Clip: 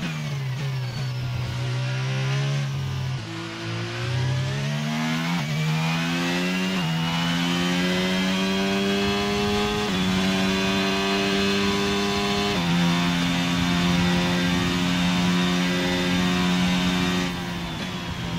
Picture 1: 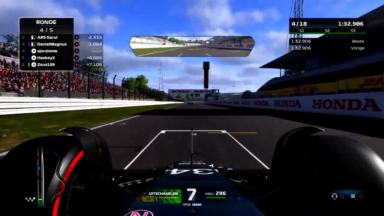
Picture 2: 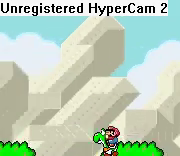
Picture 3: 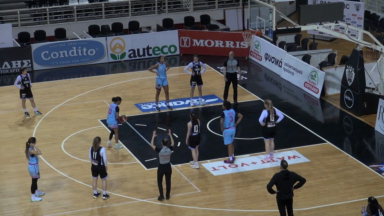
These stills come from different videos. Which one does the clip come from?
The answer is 1